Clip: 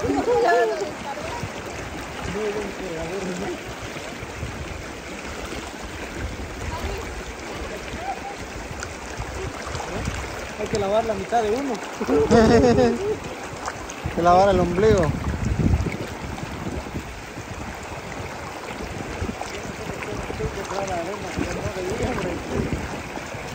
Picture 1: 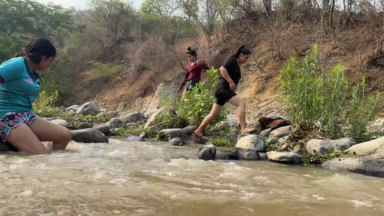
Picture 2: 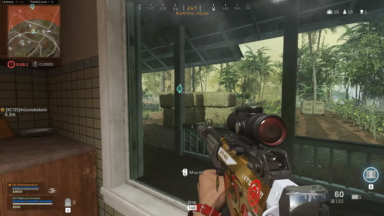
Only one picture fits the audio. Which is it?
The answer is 1